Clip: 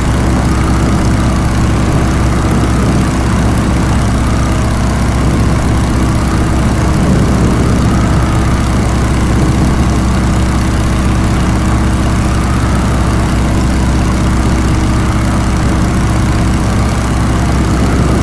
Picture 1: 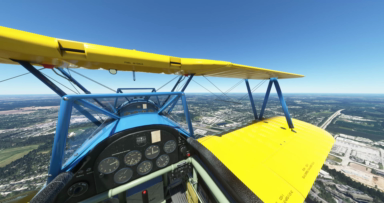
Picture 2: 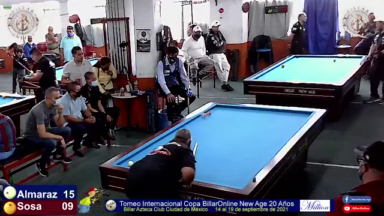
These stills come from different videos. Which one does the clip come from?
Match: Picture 1